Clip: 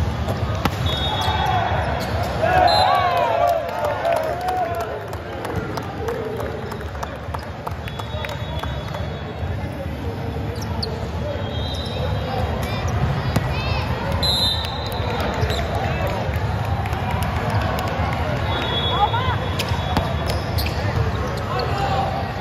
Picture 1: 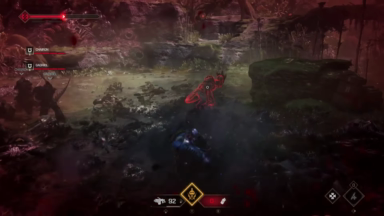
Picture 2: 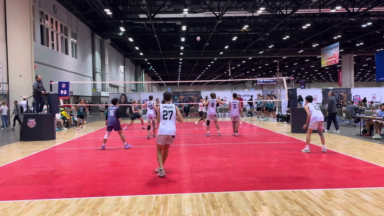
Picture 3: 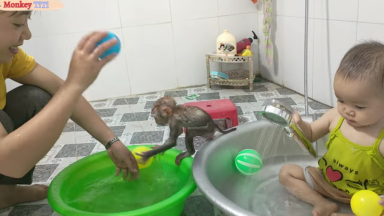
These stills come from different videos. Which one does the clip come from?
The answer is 2